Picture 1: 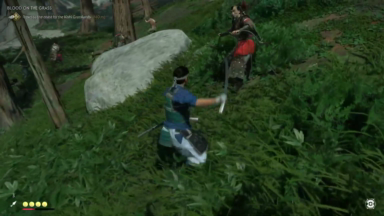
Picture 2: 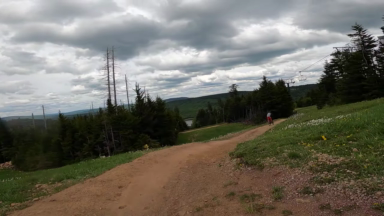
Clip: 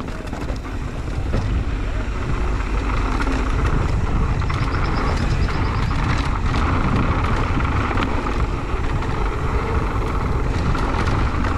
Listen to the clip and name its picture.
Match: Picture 2